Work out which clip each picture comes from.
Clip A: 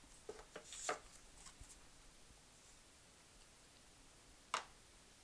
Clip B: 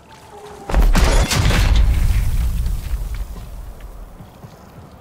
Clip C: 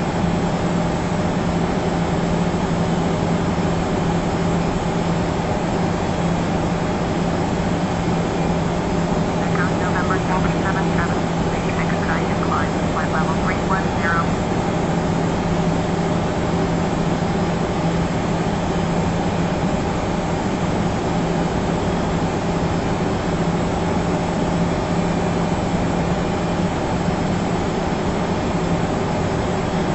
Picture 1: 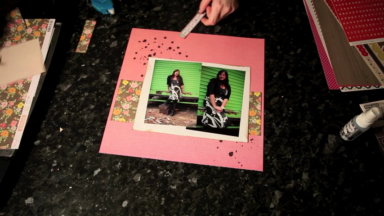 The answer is A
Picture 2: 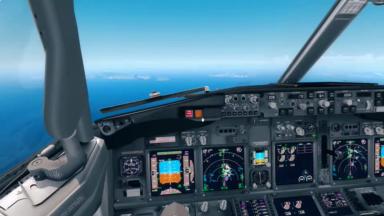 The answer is C